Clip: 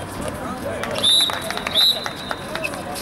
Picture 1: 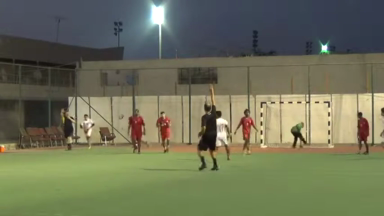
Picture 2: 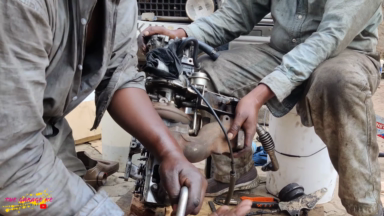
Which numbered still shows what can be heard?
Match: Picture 1